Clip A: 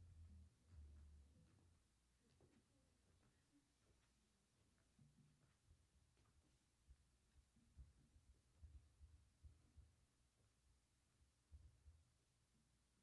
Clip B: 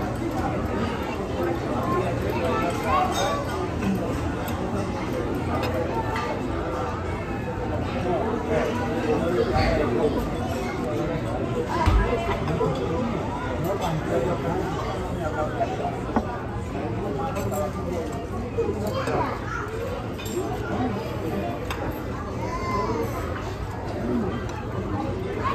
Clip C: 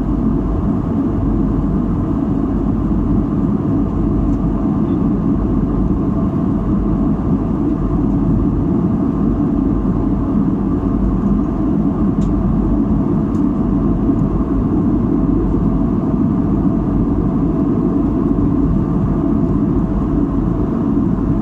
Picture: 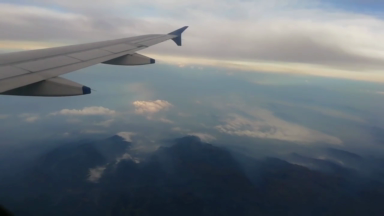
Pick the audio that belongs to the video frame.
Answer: C